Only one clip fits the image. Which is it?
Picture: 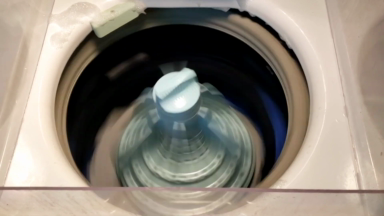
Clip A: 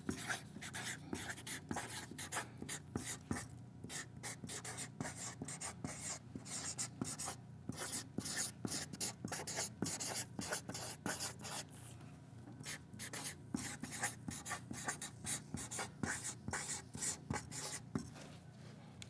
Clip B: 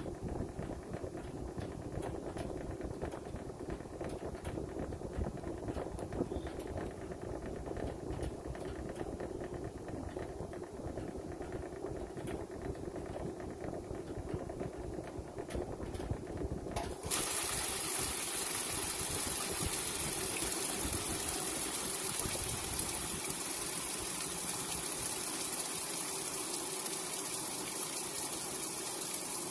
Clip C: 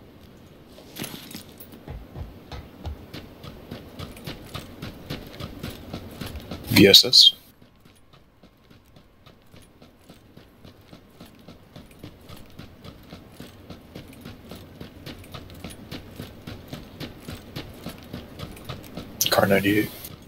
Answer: B